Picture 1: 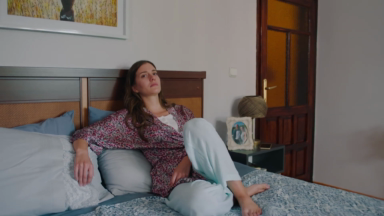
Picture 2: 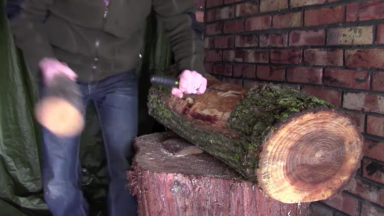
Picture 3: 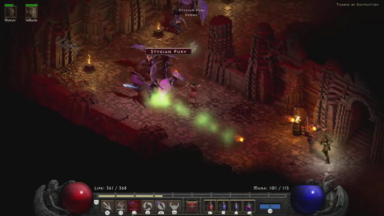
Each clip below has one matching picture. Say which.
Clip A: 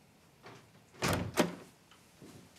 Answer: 1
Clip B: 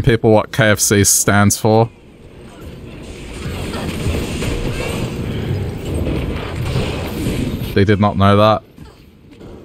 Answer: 3